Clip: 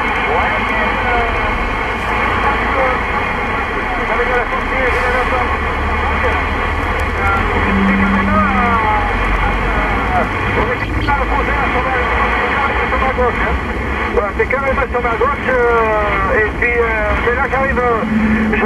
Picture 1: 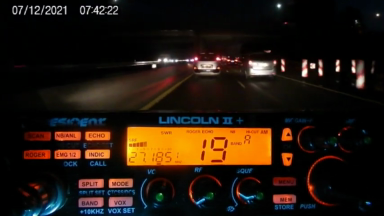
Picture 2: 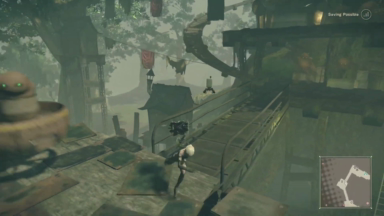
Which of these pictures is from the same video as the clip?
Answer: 1